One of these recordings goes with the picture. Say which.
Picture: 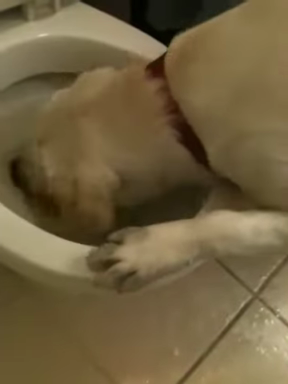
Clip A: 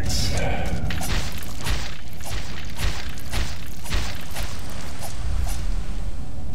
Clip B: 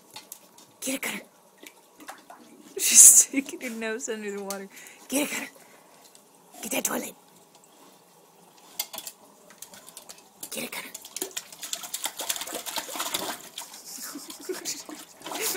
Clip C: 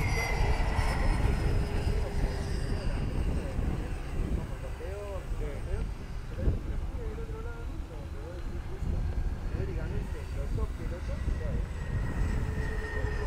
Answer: B